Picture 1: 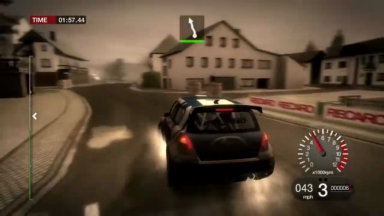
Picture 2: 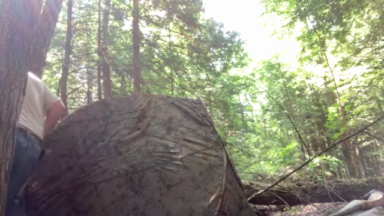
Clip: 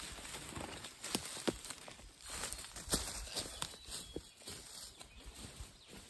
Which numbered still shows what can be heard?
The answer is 2